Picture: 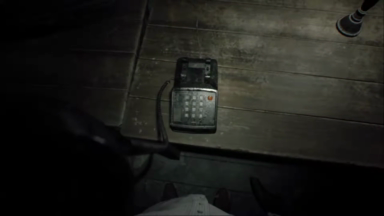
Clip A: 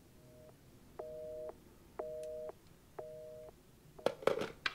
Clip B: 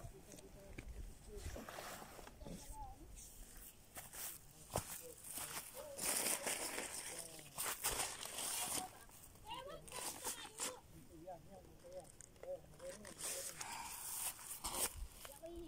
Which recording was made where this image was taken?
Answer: A